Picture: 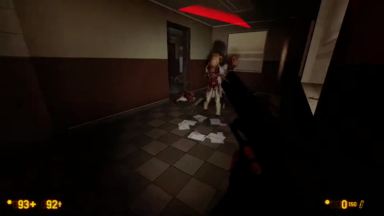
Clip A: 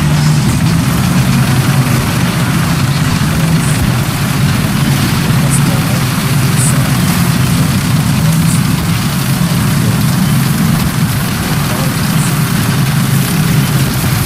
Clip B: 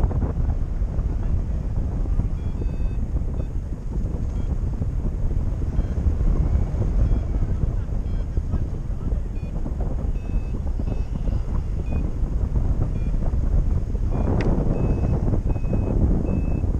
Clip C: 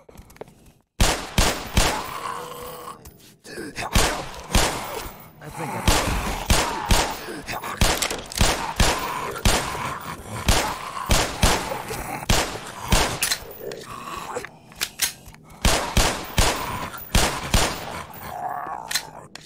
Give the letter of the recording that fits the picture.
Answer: C